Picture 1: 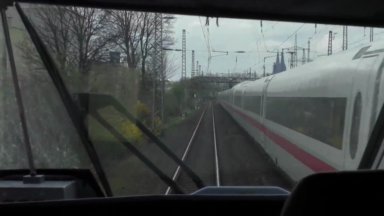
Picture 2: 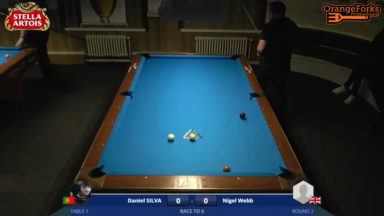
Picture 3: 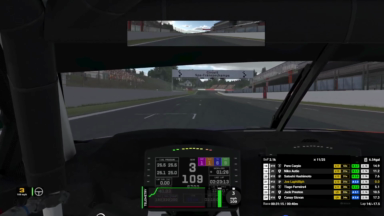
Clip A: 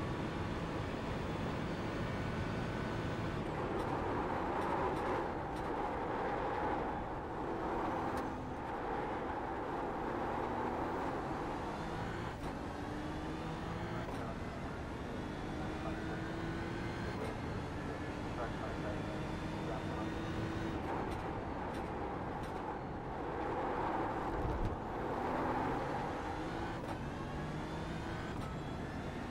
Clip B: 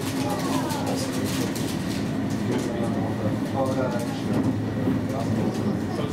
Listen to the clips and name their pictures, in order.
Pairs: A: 3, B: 1